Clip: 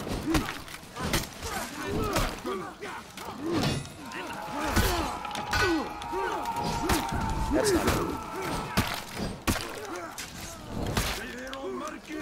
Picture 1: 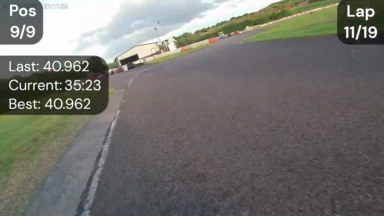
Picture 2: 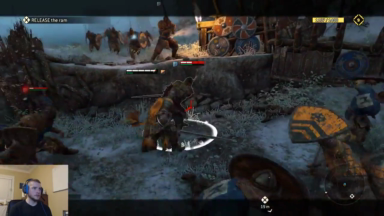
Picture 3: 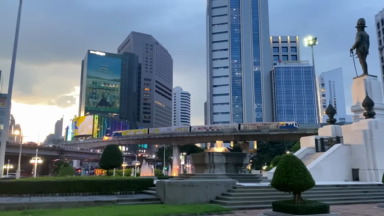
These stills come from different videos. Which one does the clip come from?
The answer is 2